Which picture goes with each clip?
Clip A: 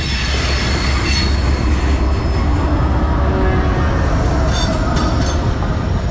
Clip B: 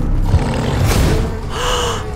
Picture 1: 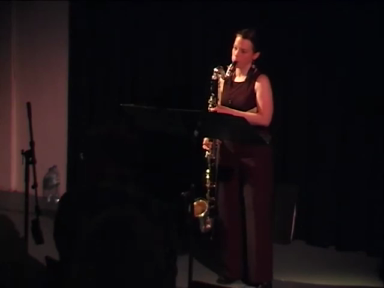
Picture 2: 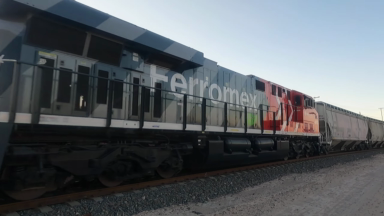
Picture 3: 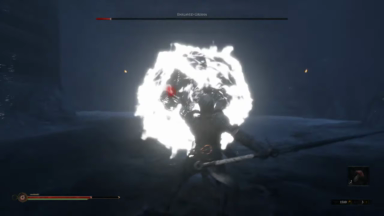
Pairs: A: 2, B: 3